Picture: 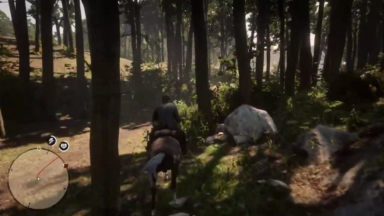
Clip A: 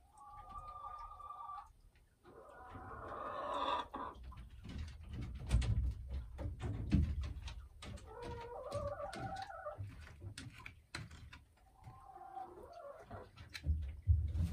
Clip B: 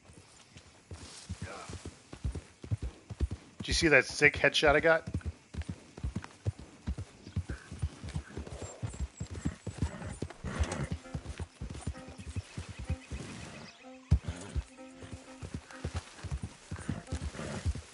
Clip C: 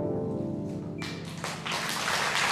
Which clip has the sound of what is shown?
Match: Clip B